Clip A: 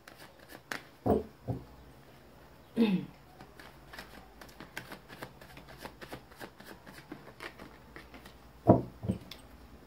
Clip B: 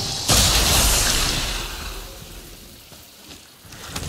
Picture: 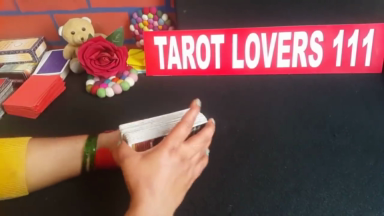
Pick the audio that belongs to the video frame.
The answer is A